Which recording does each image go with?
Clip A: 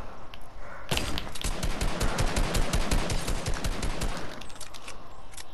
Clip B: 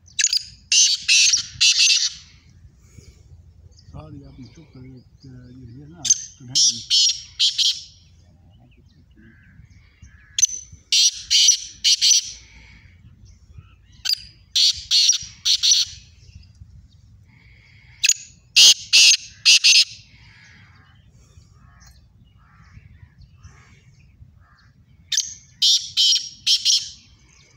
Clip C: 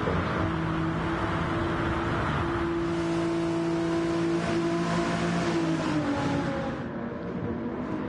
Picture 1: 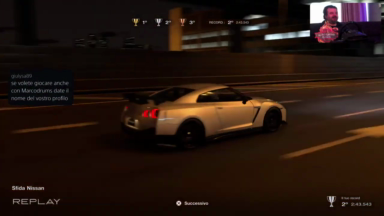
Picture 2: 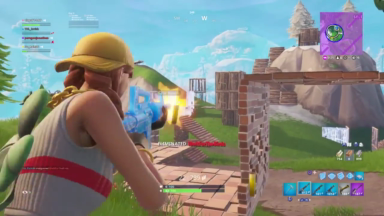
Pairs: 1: C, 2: A